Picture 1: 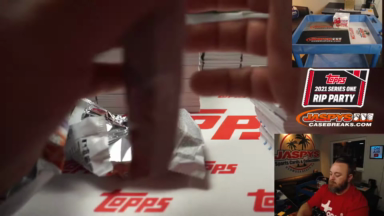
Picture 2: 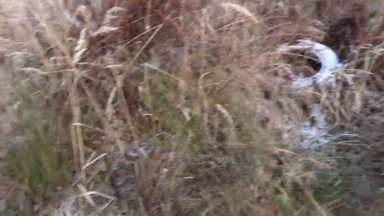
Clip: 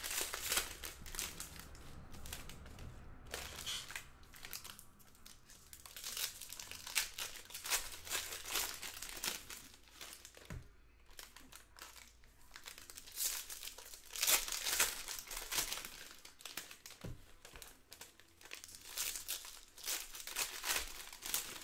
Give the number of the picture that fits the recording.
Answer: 1